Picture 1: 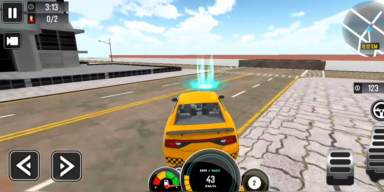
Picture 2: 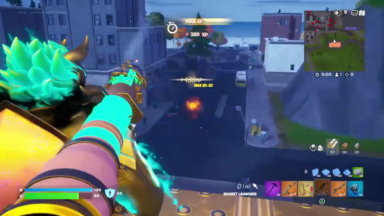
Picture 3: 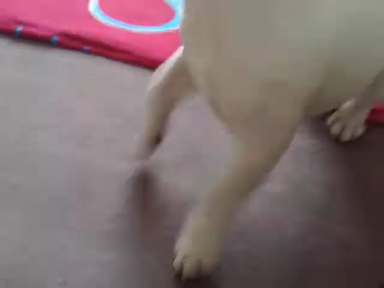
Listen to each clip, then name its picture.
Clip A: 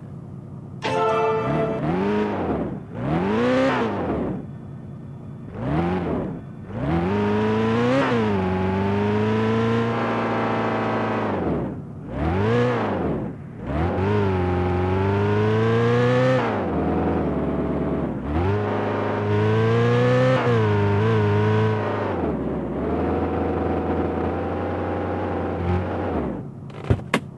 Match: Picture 1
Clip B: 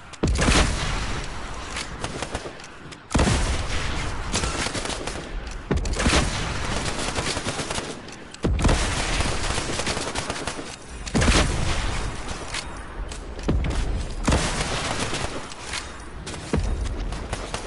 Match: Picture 2